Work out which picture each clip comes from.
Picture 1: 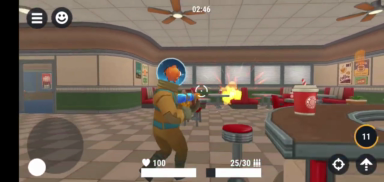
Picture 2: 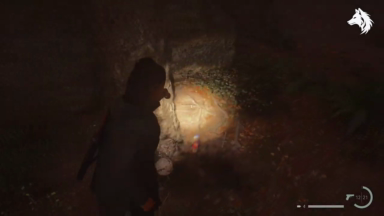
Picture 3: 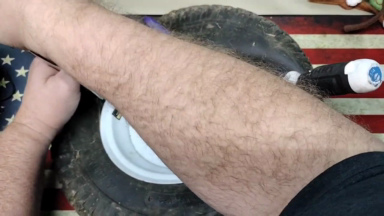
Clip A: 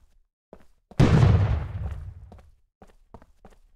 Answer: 1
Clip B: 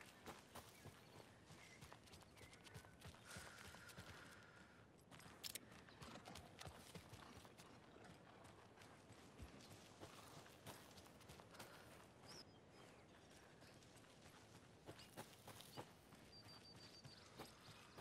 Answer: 2